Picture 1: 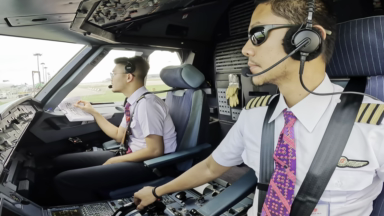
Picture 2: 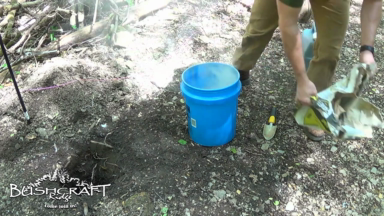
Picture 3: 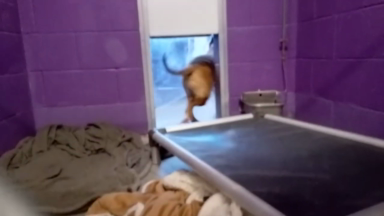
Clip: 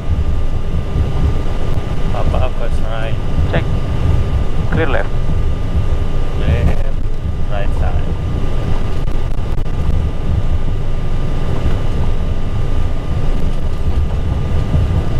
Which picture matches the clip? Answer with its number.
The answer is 1